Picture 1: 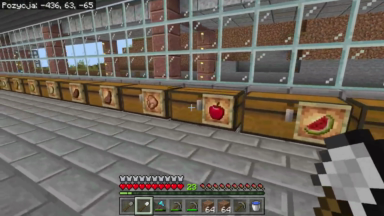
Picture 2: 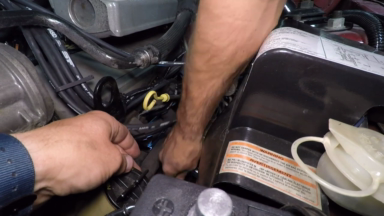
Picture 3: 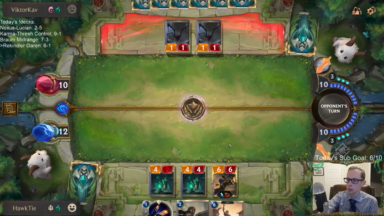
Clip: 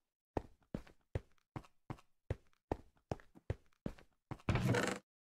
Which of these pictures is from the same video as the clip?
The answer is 1